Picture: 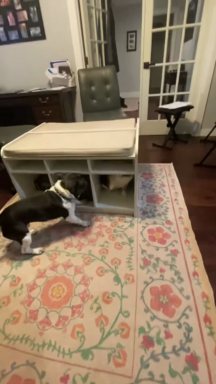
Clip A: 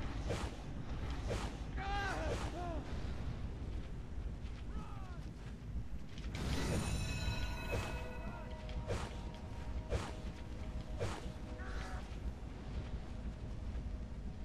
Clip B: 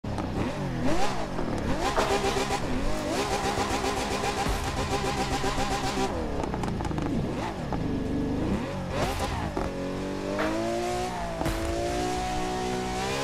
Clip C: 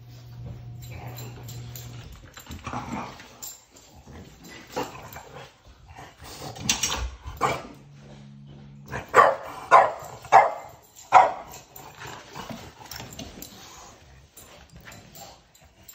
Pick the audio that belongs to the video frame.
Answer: C